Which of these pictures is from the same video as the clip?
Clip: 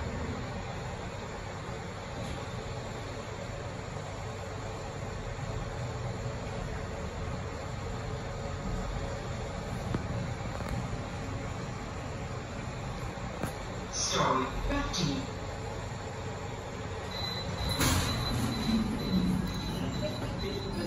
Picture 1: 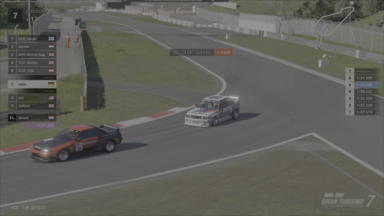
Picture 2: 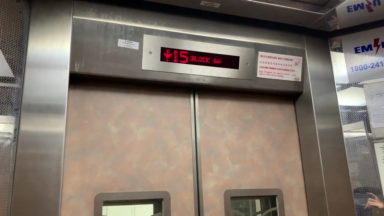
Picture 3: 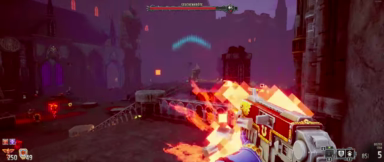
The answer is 2